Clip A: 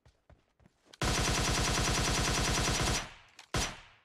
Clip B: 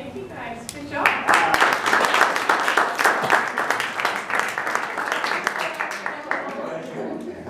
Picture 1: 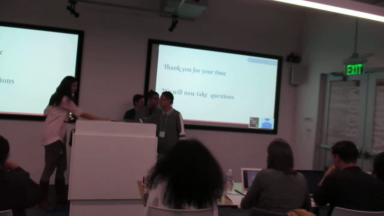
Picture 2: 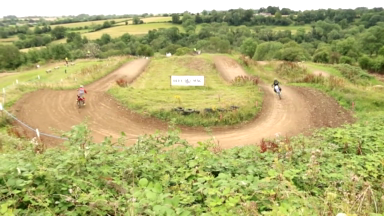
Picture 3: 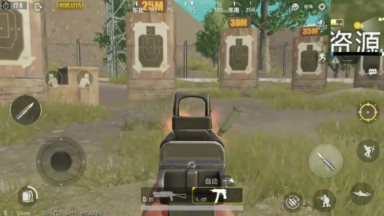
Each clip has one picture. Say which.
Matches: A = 3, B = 1